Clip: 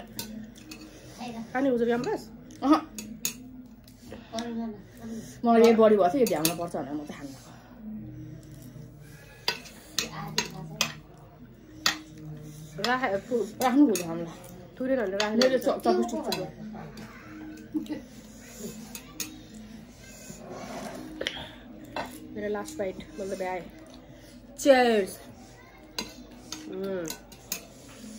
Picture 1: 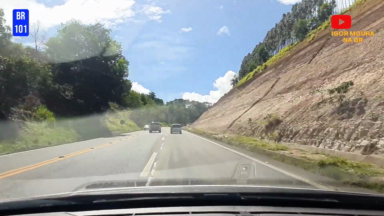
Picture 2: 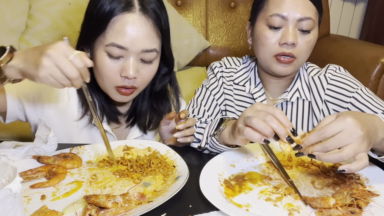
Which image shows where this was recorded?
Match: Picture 2